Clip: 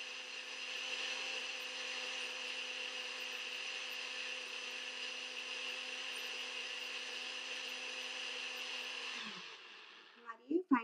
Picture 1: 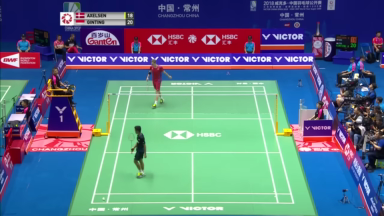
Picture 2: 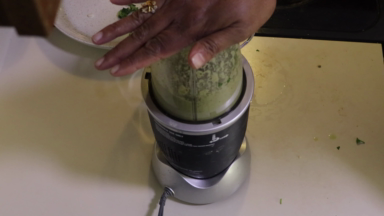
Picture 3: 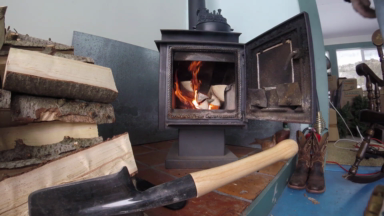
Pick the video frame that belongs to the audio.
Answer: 2